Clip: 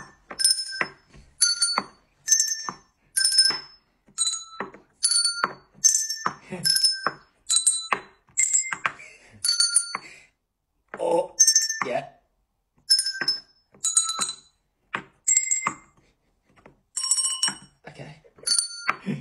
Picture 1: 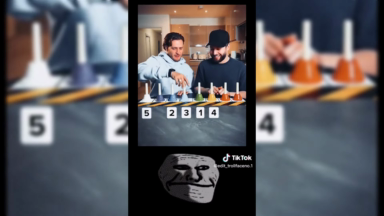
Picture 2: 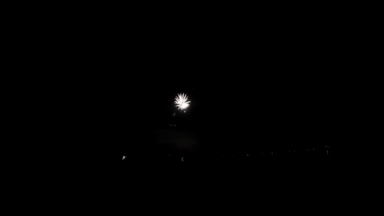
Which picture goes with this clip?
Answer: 1